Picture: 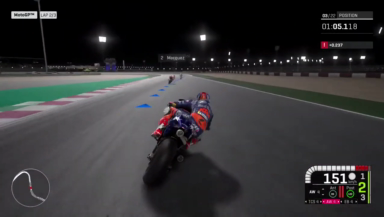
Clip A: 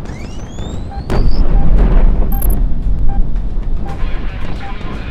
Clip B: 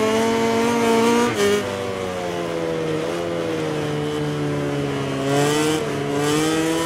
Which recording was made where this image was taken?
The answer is B